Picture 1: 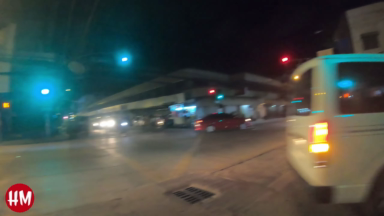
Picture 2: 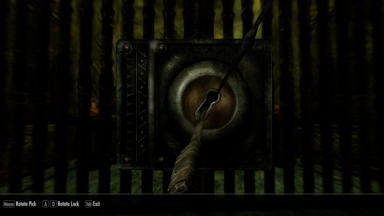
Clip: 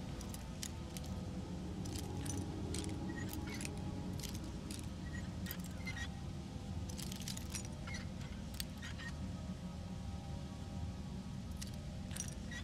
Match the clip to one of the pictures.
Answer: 2